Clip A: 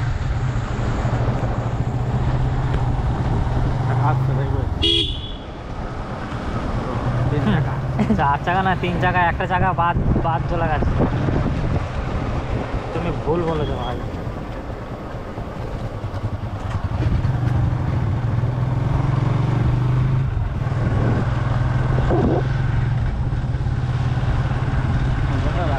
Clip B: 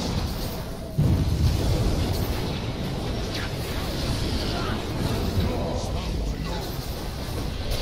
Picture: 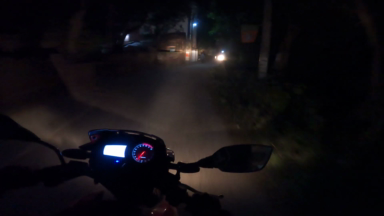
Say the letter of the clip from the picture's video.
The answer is A